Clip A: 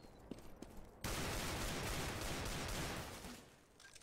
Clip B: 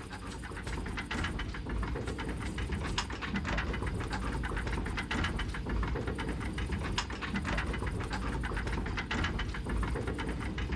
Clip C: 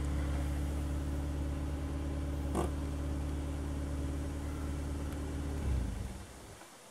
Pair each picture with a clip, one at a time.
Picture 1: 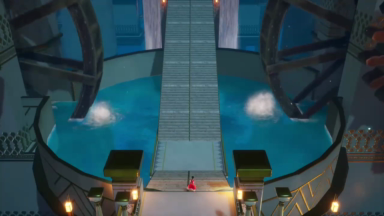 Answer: B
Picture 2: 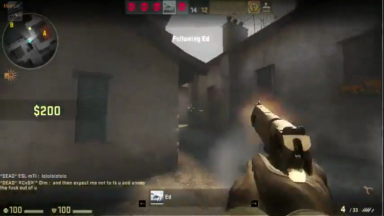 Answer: A